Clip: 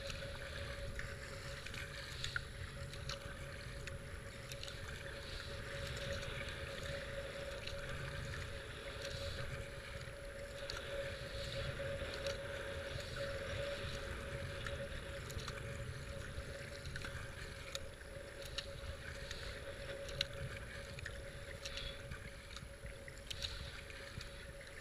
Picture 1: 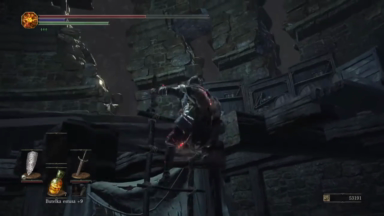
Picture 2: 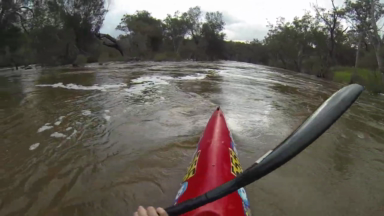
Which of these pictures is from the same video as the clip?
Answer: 2